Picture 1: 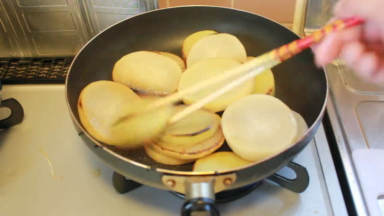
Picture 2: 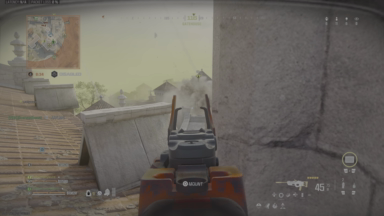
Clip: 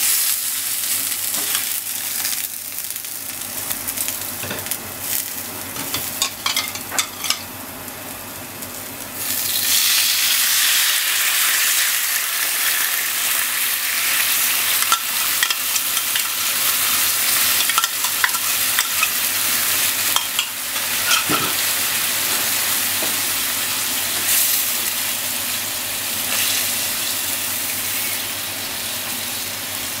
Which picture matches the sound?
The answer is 1